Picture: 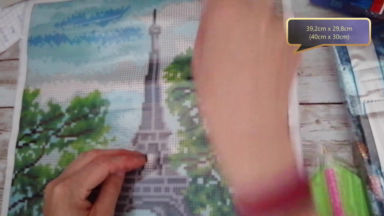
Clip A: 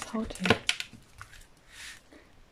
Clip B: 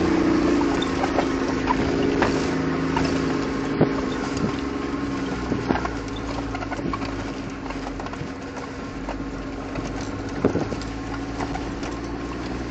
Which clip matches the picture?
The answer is A